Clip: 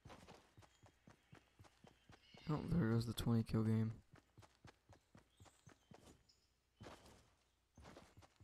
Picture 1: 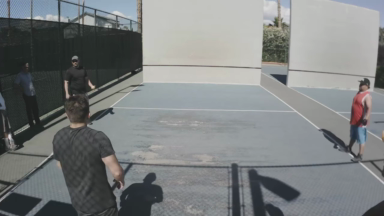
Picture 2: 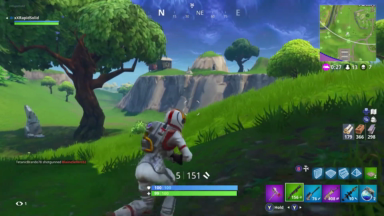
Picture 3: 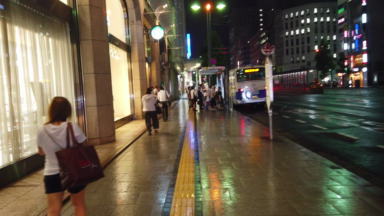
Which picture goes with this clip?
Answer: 2